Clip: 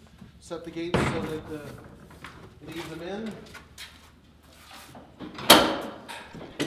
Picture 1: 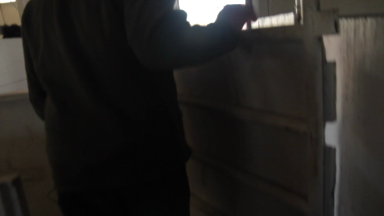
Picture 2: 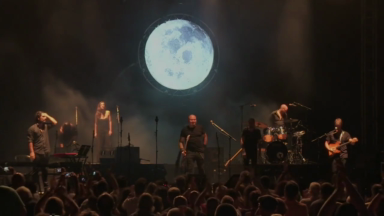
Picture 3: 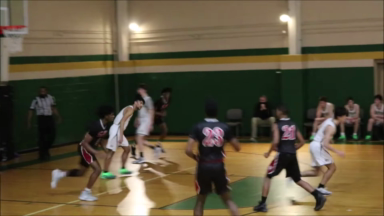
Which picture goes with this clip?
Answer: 1